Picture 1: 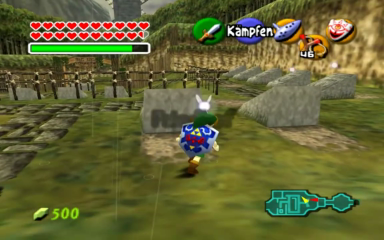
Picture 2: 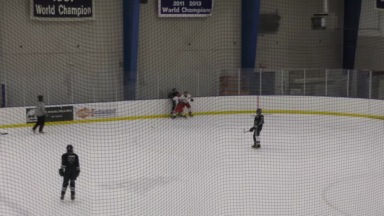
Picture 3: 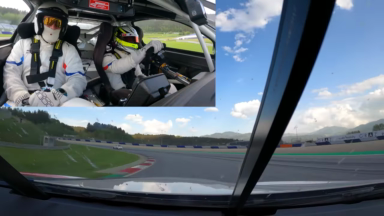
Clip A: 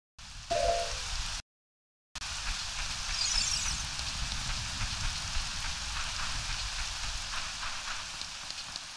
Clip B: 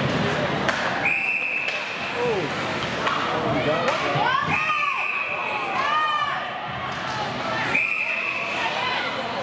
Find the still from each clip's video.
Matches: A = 1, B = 2